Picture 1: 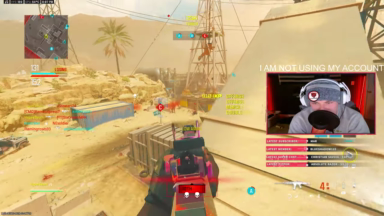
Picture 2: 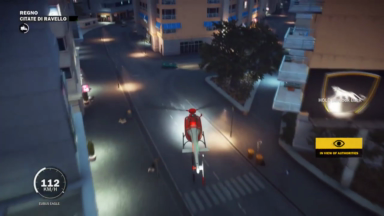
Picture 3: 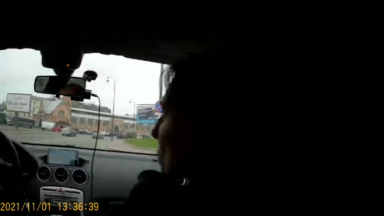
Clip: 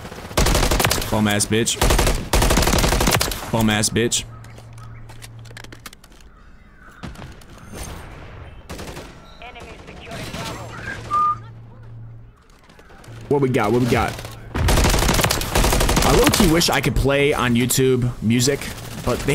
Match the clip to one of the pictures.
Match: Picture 1